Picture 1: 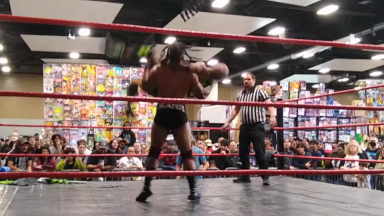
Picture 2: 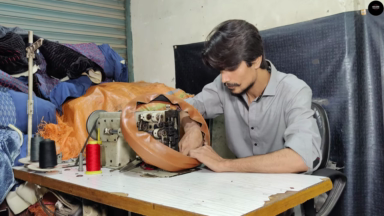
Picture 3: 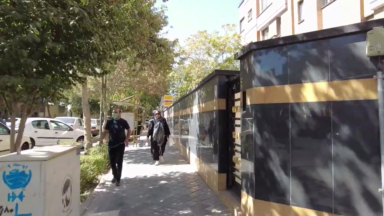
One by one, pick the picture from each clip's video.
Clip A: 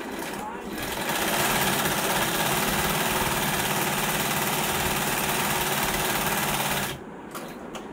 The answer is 2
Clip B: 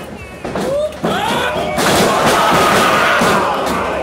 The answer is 1